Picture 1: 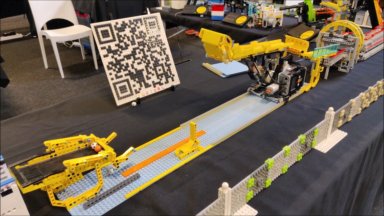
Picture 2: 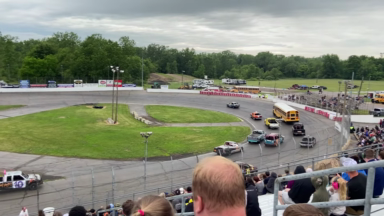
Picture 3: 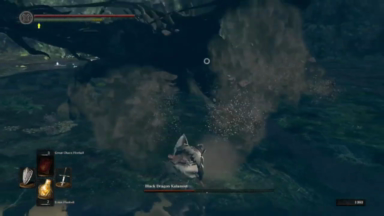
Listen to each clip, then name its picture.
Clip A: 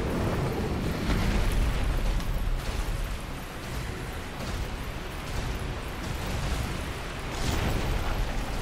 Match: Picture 3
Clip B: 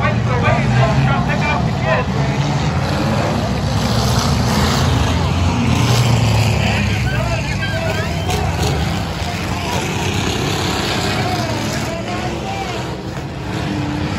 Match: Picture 2